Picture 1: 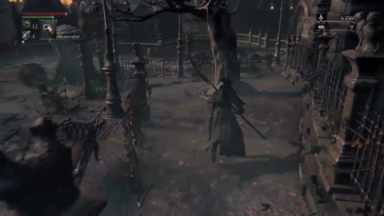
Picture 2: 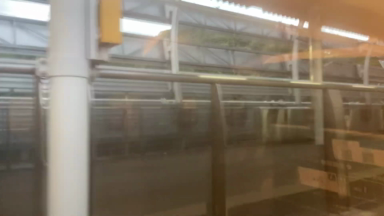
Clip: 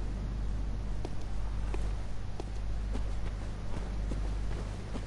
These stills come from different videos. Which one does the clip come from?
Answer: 1